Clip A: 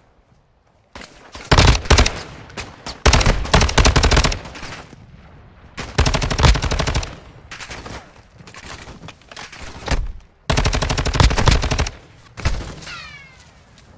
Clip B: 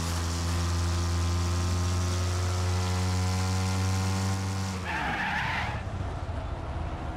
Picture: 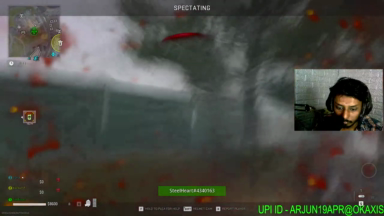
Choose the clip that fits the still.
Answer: A